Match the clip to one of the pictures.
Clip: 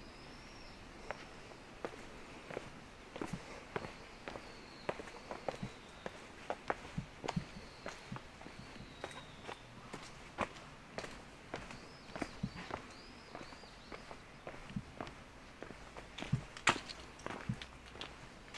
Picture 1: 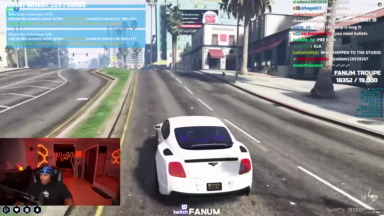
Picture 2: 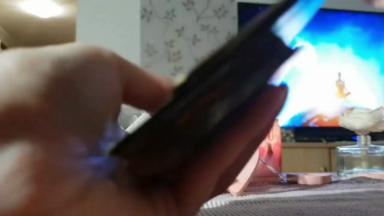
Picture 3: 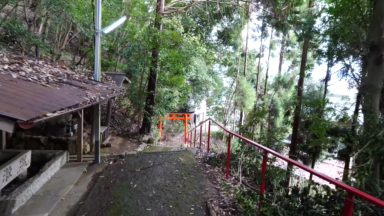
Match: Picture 3